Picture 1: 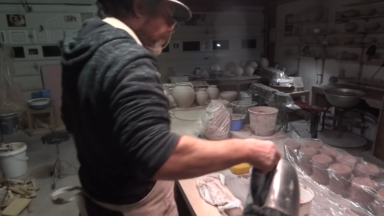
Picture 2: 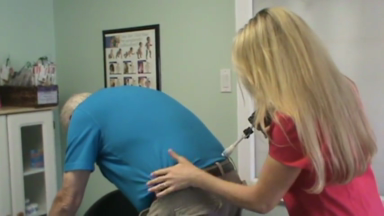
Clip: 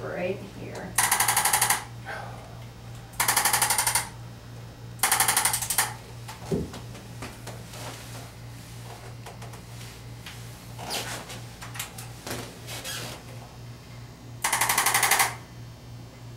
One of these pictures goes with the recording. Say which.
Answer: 2